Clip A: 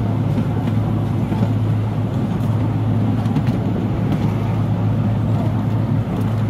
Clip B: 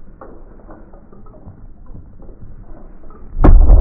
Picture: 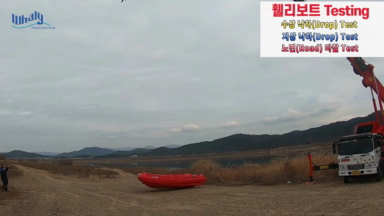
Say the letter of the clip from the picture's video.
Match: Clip B